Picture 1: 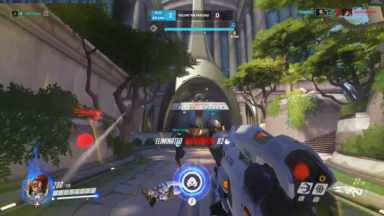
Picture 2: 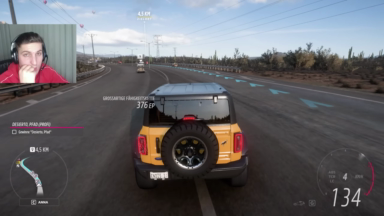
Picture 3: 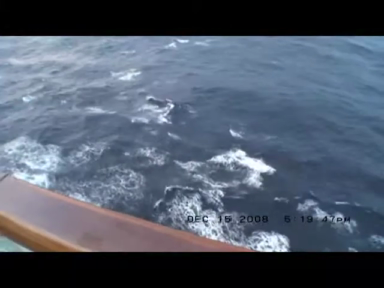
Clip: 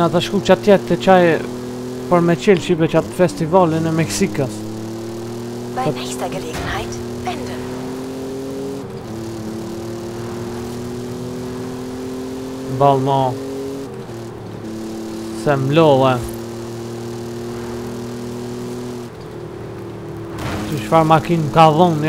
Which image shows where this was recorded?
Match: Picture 2